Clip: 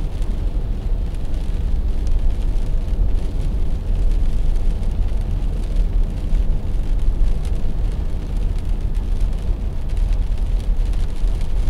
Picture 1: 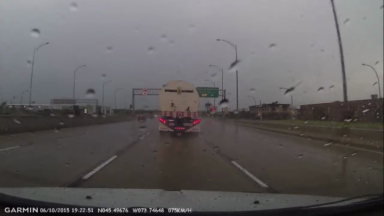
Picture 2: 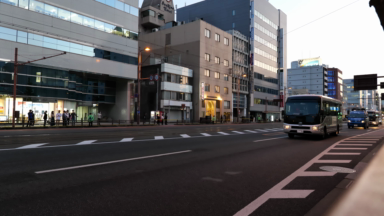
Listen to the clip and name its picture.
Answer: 1